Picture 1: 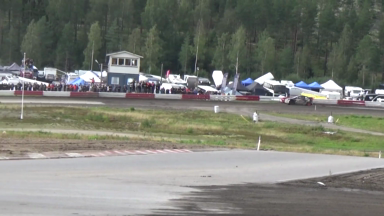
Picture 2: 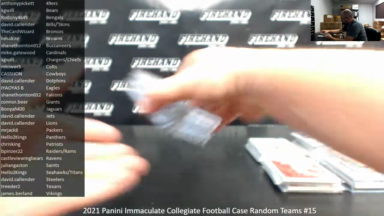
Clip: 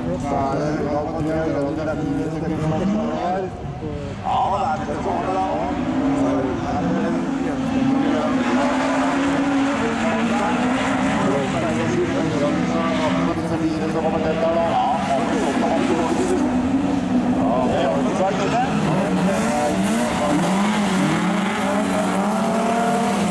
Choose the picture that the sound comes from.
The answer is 1